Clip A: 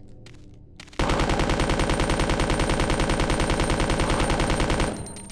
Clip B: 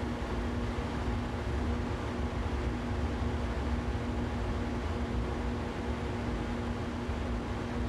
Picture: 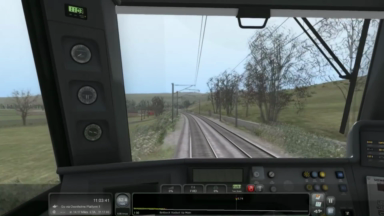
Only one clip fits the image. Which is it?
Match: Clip B